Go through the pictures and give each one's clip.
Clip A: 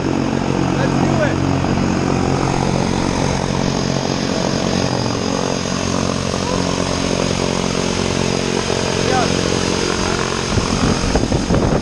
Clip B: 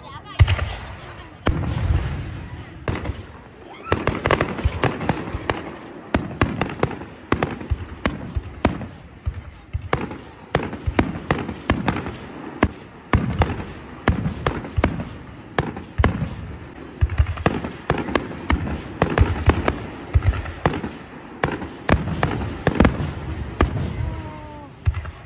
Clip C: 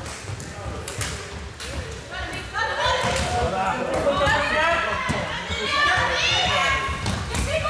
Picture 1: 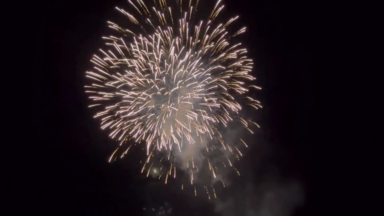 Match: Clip B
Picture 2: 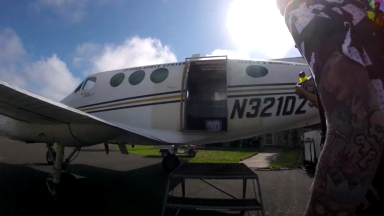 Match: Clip A